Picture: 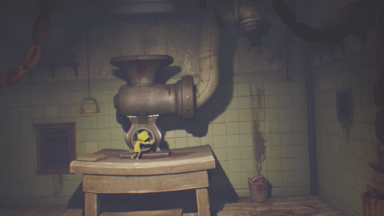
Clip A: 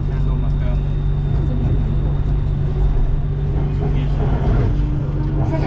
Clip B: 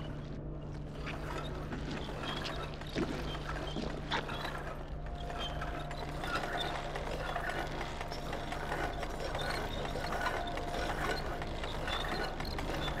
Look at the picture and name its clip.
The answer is B